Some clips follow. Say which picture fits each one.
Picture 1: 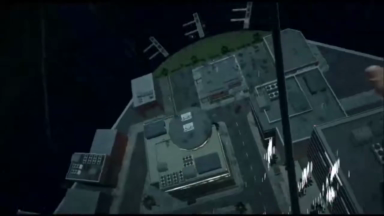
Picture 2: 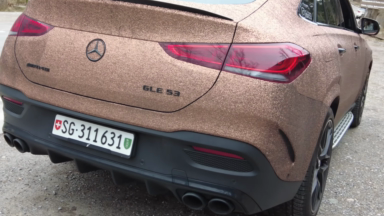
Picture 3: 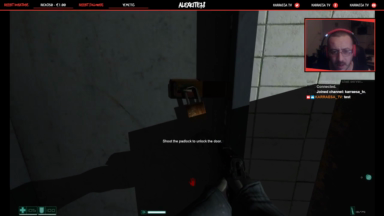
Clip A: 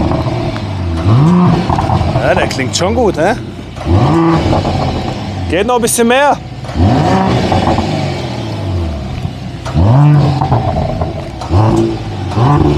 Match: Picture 2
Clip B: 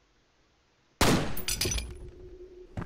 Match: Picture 3